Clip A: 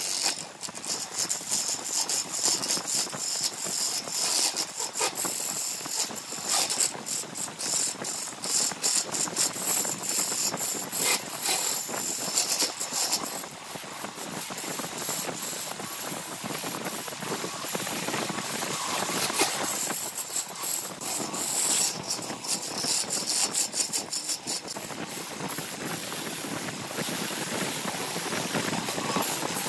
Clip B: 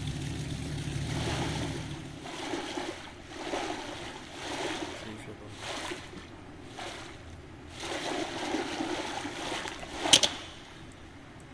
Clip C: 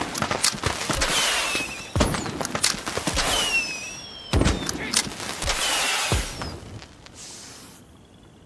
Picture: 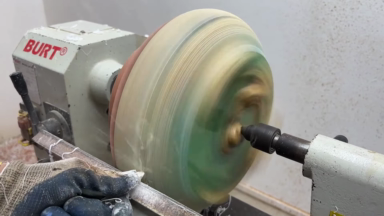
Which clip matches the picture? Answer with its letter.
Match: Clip A